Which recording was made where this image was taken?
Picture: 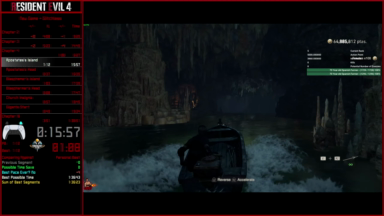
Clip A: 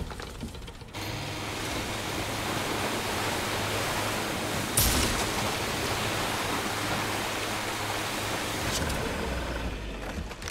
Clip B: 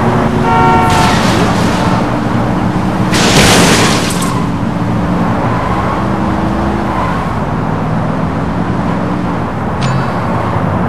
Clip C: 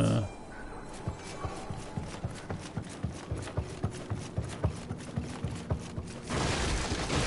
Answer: A